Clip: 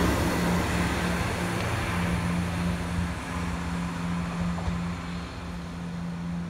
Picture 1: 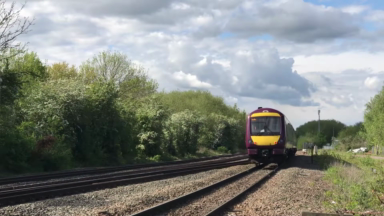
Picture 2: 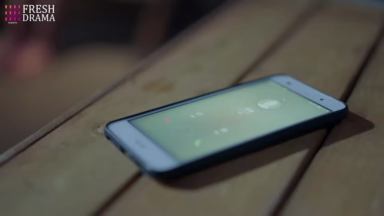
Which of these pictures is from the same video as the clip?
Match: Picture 1